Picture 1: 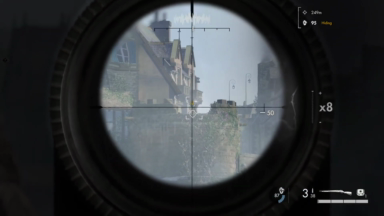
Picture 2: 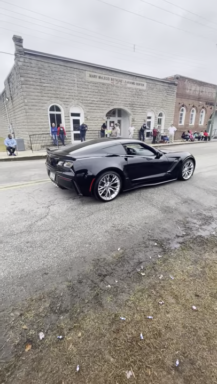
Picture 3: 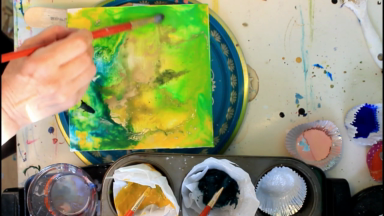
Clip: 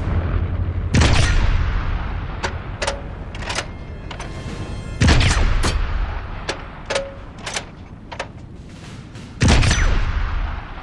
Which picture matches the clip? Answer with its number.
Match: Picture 1